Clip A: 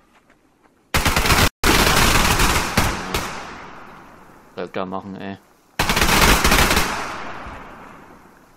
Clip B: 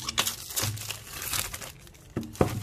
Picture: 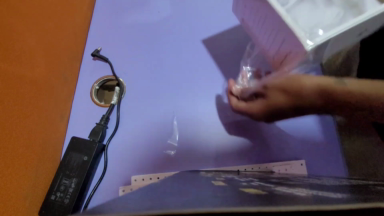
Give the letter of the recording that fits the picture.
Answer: B